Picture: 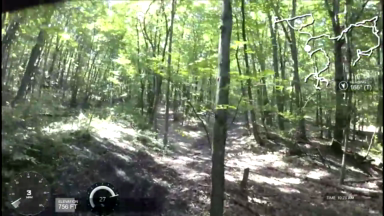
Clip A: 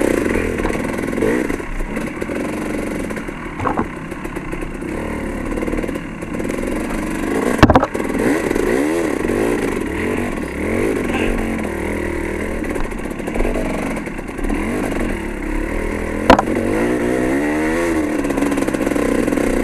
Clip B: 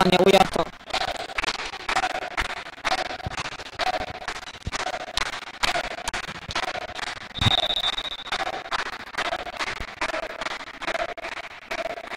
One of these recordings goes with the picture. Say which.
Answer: A